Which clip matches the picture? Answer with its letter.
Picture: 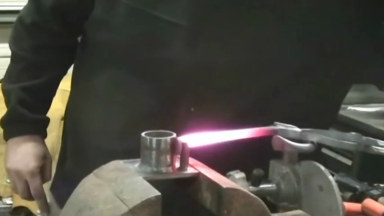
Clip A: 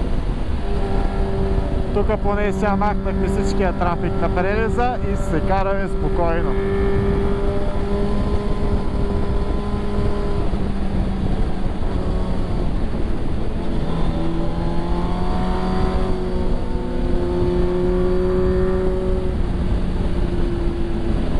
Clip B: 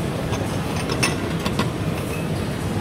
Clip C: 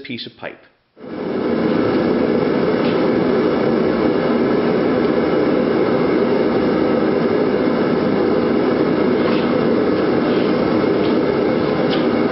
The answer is C